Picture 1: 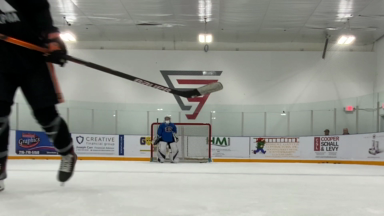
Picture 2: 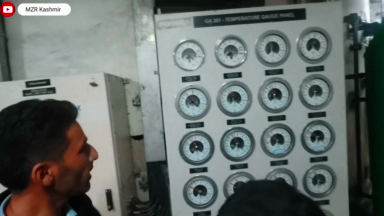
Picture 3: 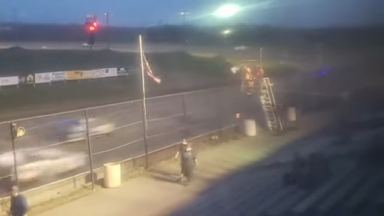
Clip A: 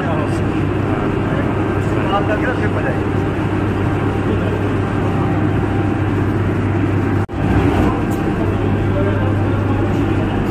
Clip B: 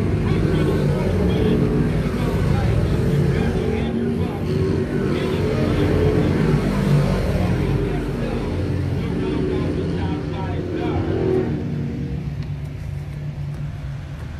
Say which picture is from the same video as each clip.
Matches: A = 2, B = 3